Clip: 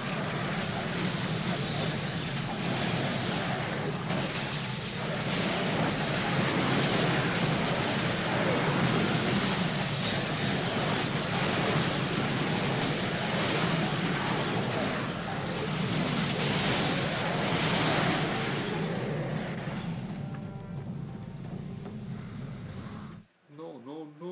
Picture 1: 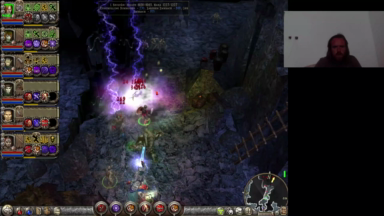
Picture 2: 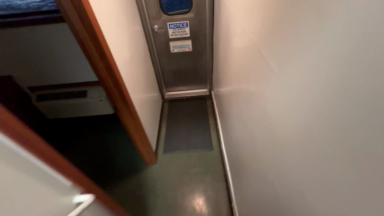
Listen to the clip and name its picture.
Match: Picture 1